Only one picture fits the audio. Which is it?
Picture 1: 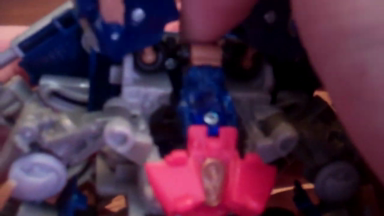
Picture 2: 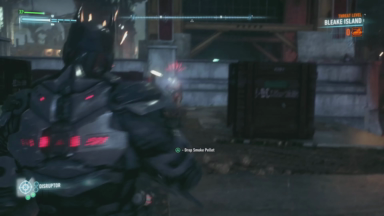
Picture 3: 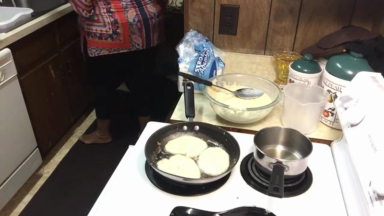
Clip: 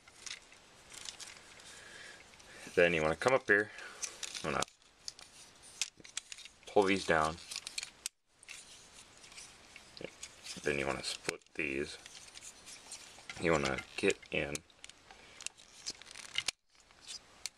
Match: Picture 1